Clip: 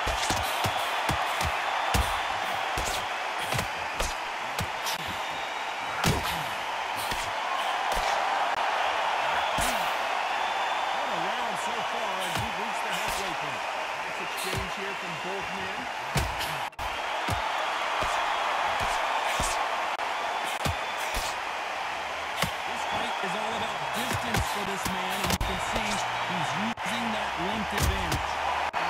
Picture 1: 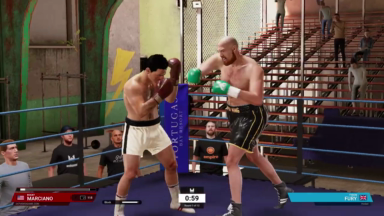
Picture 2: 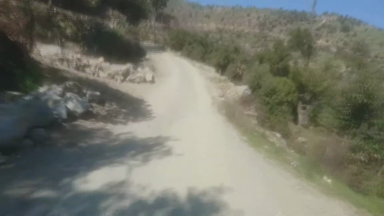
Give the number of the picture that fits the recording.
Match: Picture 1